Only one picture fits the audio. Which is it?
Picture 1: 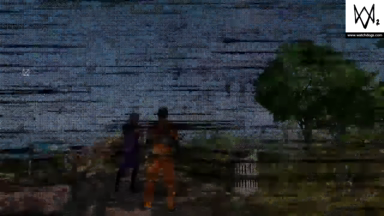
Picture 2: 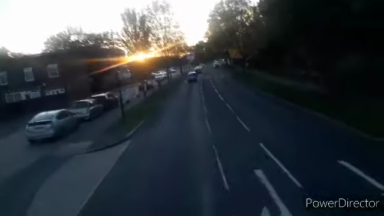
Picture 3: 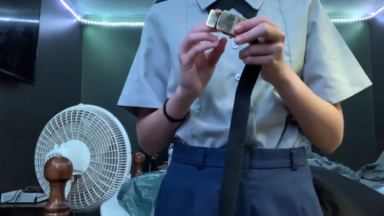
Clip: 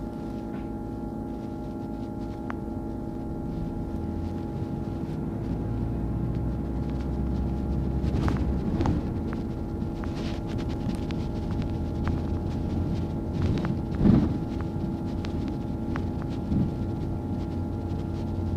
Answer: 2